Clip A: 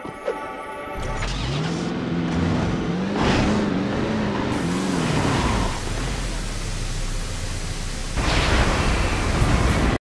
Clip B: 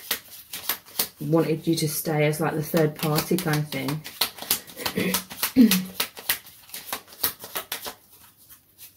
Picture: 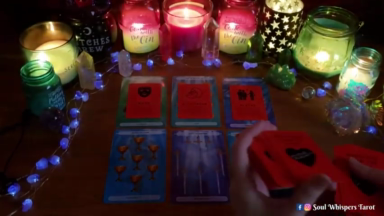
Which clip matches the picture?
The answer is B